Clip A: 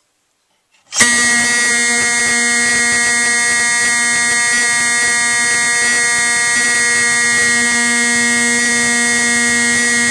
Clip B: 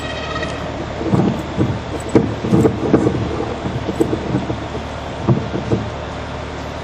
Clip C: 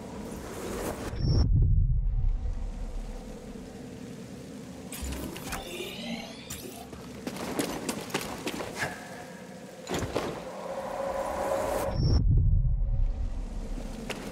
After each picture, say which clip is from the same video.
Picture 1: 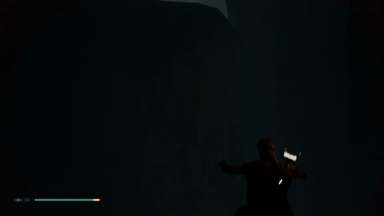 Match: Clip C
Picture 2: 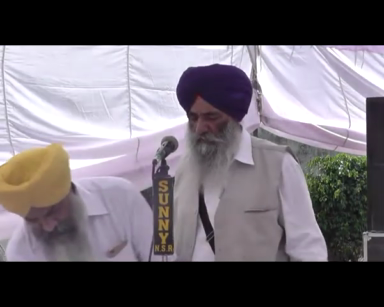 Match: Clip B